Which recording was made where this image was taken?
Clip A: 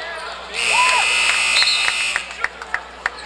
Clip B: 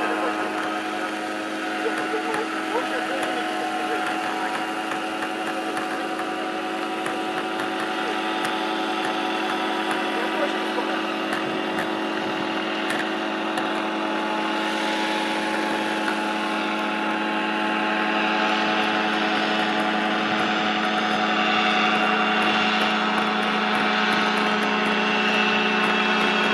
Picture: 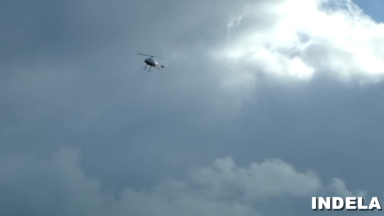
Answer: B